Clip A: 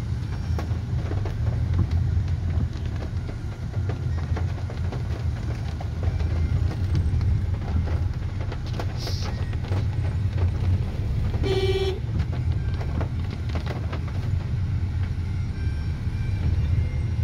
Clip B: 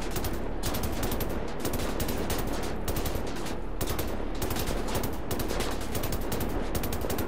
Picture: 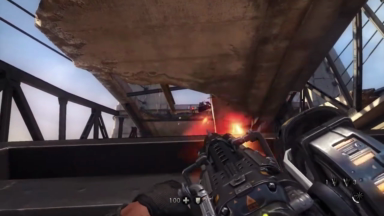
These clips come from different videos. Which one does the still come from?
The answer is B